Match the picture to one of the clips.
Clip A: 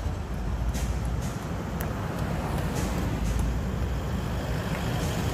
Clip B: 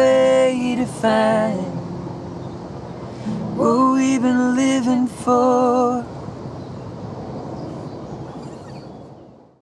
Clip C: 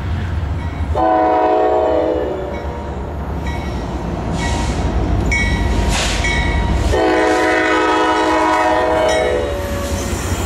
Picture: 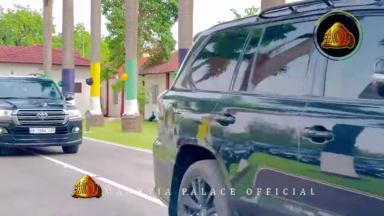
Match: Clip A